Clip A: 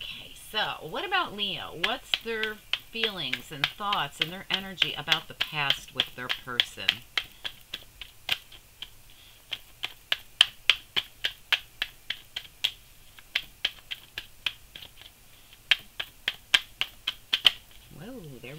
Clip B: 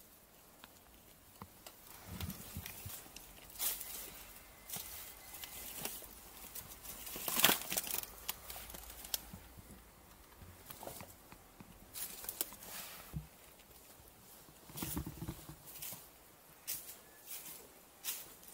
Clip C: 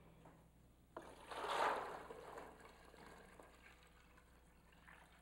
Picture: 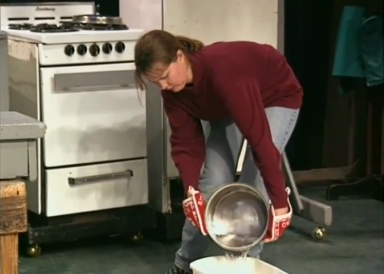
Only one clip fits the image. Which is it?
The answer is C